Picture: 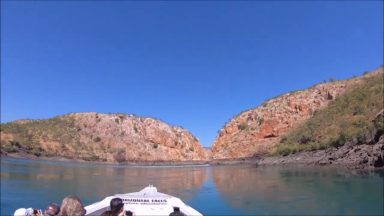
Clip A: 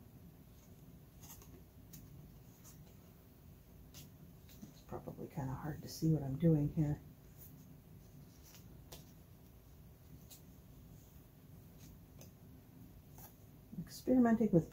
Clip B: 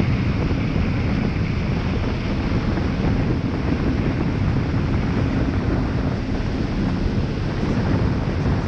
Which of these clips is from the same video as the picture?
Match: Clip B